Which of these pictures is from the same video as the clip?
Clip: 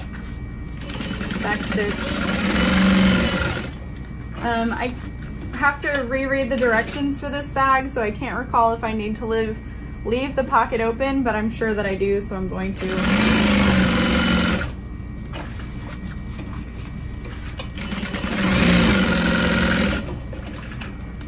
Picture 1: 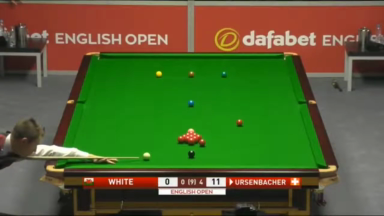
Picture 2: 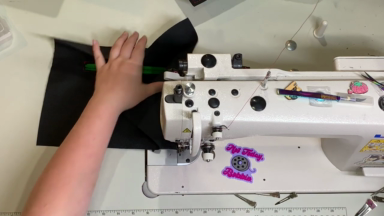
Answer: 2